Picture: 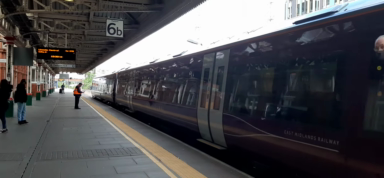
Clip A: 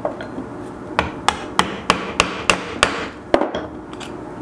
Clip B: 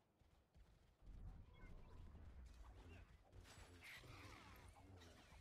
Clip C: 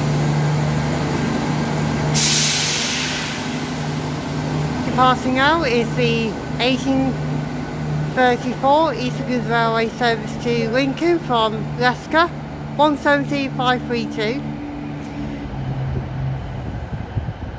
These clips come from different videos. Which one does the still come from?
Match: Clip C